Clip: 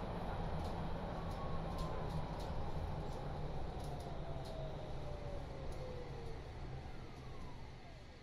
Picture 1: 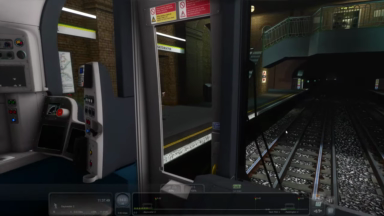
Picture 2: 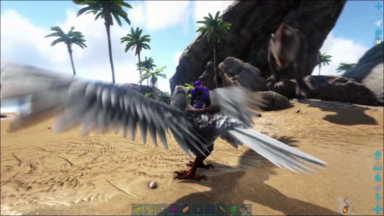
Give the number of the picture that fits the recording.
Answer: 1